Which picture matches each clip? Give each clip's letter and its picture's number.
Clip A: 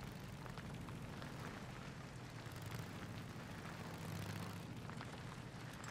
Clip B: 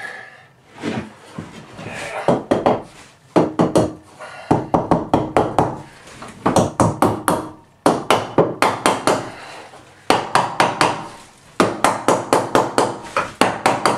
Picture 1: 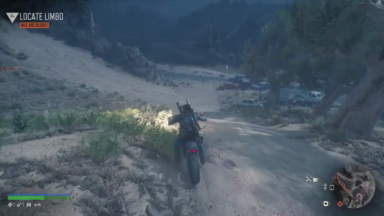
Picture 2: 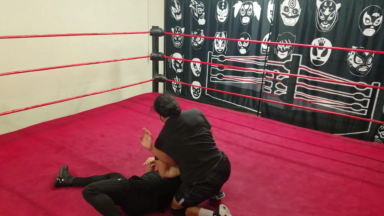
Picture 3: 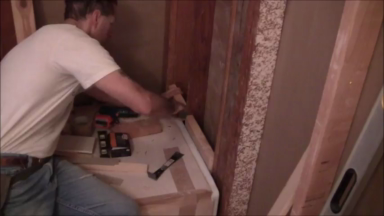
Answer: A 1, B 3